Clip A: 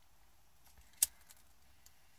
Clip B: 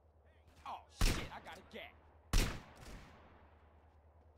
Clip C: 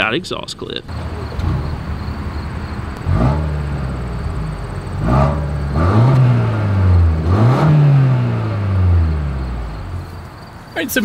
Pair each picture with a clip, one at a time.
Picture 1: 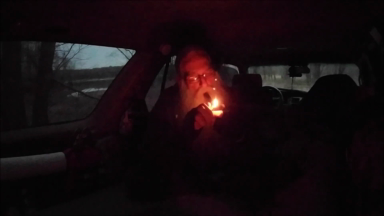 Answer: A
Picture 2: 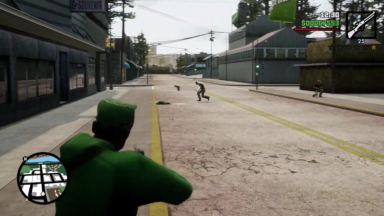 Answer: B